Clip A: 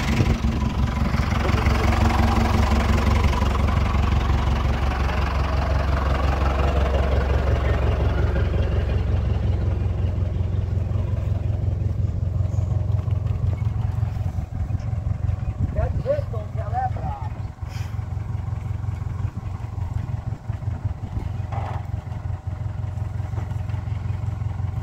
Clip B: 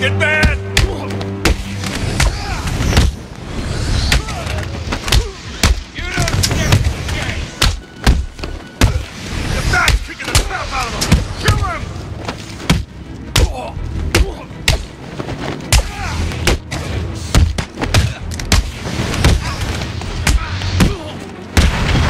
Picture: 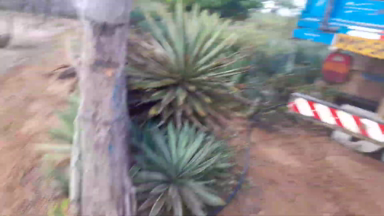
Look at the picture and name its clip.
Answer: A